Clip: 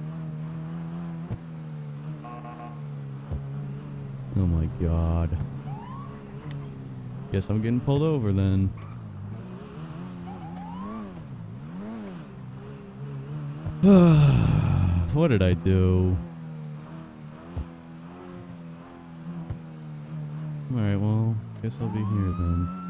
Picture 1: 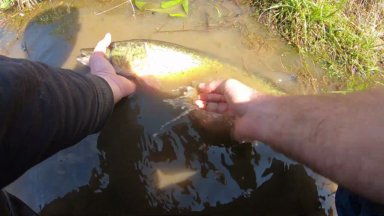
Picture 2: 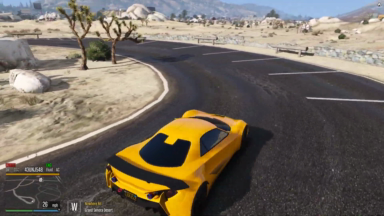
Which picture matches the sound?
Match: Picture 2